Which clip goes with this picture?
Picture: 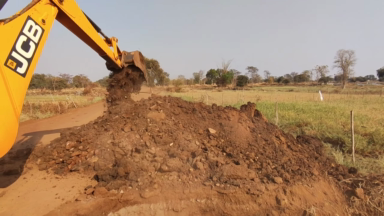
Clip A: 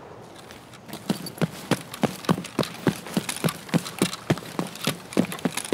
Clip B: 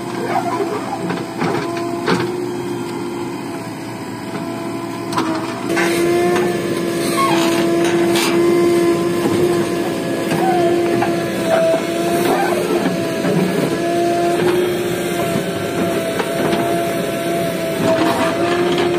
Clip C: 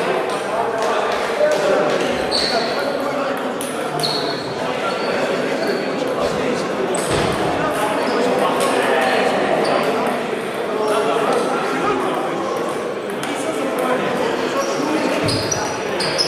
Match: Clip B